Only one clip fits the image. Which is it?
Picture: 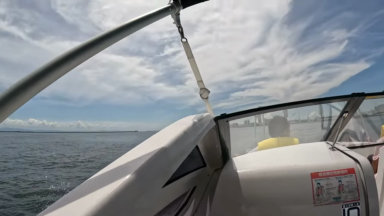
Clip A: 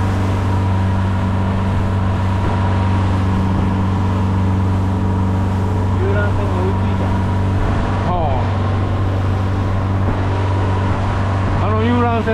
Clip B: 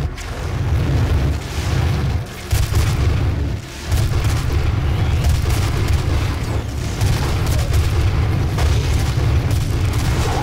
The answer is A